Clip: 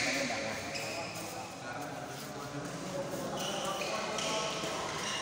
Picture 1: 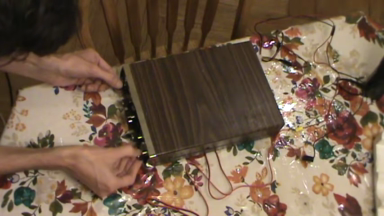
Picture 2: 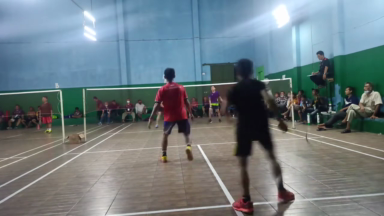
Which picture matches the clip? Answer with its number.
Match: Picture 2